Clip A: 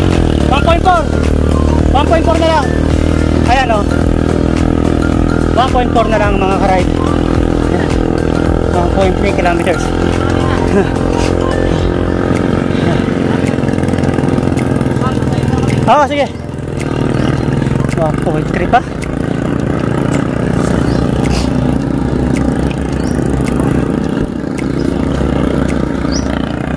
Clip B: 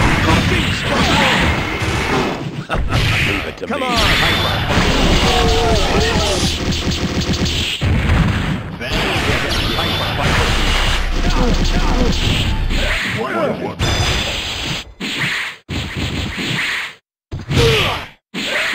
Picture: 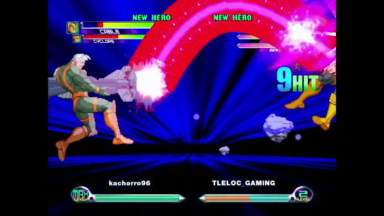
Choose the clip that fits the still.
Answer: B